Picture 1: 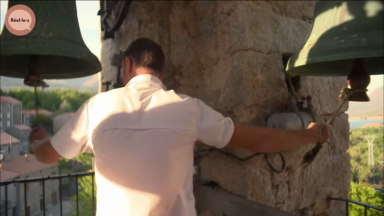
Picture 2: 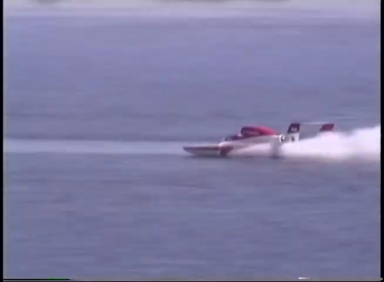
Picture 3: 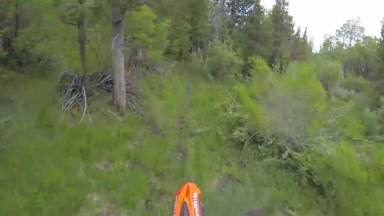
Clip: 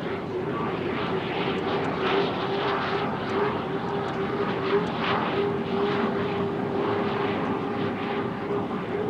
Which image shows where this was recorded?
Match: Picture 2